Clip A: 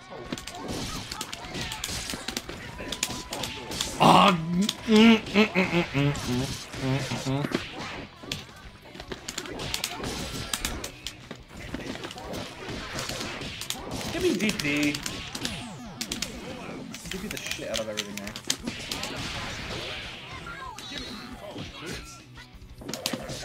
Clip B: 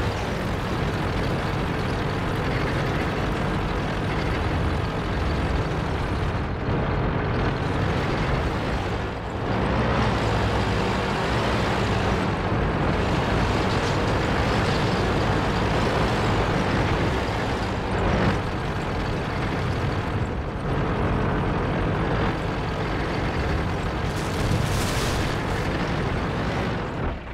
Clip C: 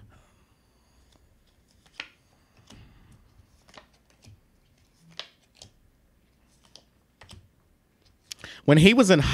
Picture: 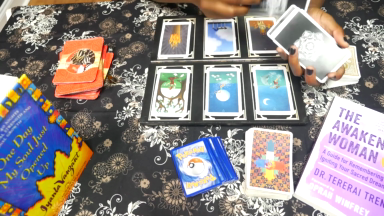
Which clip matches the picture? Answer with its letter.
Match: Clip C